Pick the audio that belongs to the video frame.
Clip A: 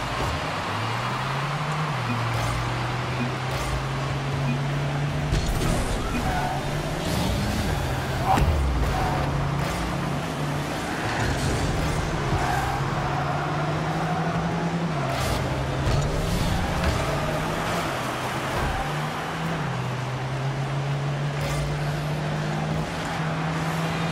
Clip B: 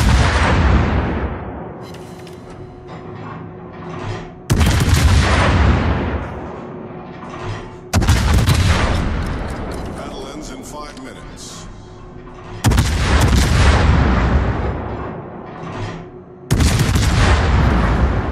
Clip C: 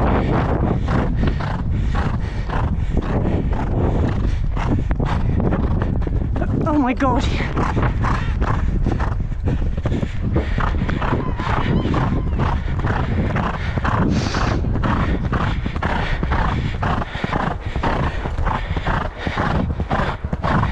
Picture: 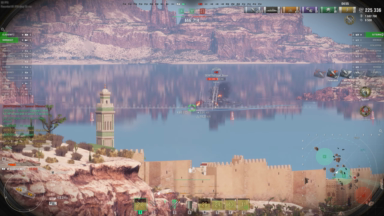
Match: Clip B